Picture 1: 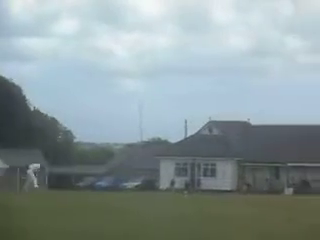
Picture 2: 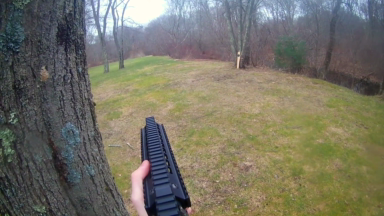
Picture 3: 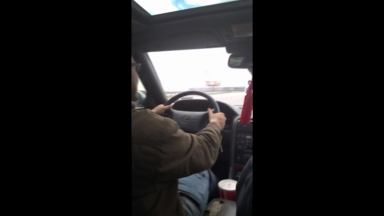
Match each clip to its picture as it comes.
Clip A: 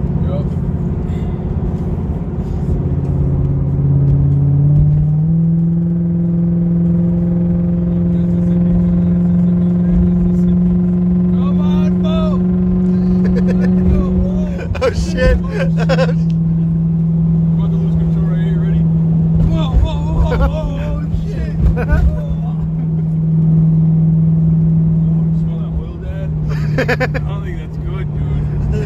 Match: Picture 3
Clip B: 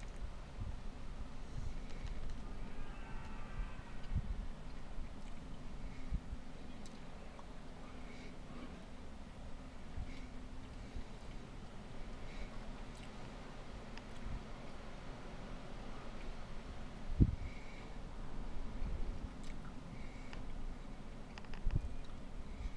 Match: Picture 1